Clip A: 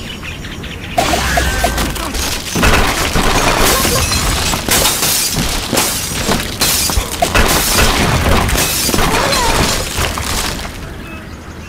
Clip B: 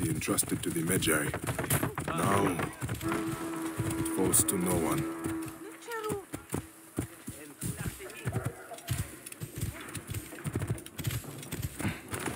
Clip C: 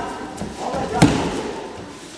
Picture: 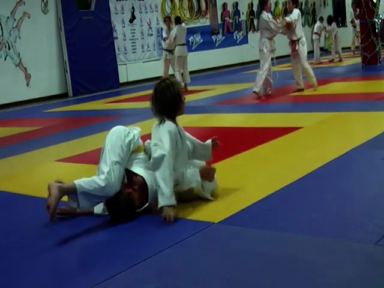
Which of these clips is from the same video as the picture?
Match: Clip C